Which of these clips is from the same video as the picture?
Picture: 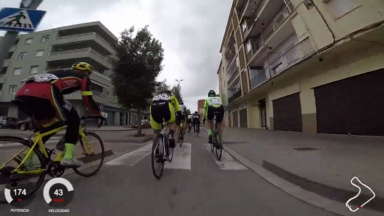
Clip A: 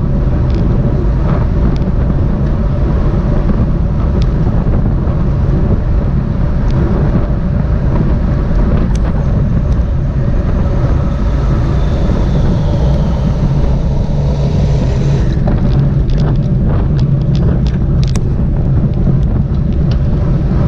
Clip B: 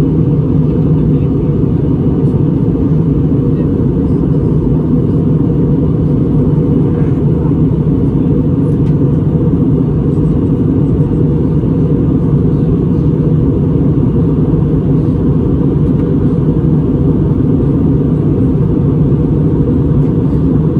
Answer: A